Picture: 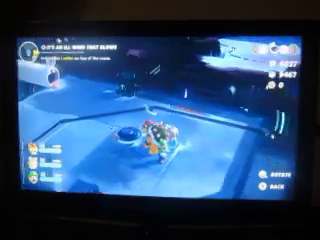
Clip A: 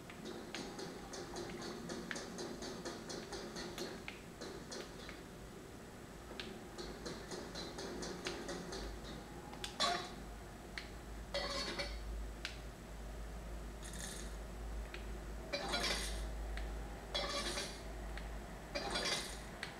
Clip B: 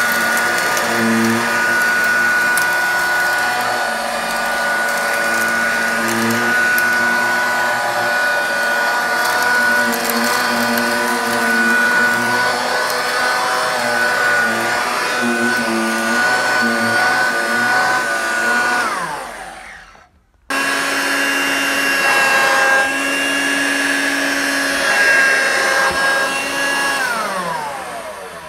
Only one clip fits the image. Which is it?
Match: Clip A